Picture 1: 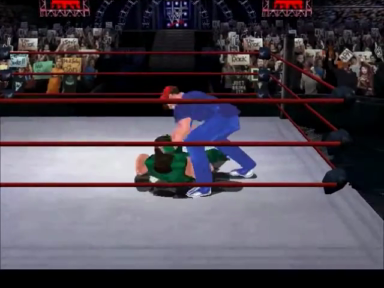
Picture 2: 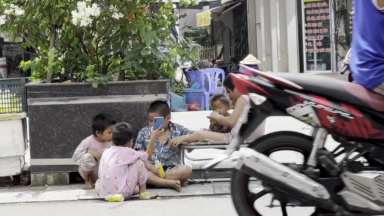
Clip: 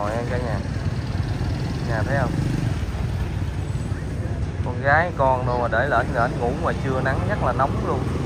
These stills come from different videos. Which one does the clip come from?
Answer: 2